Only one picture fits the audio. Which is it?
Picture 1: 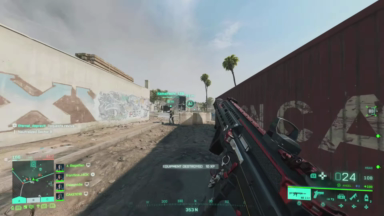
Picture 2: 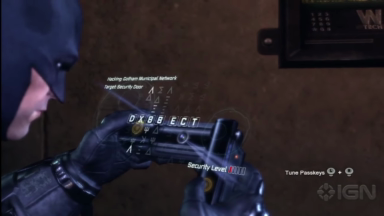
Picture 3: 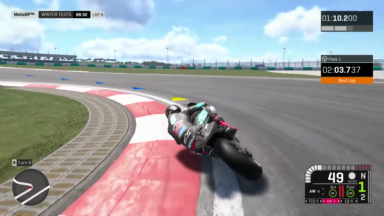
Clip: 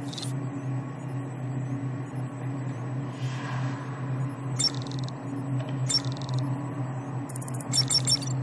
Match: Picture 2